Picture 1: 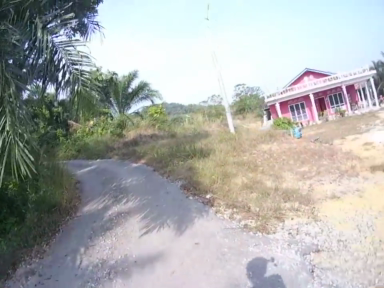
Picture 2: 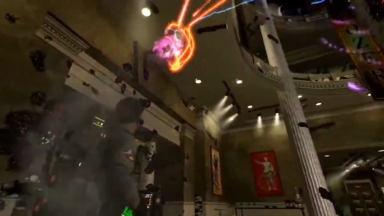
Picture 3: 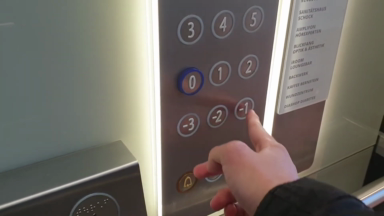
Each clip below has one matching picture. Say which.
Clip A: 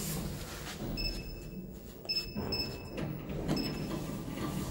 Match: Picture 3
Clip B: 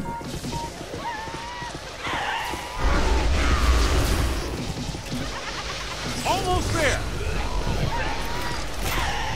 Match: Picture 2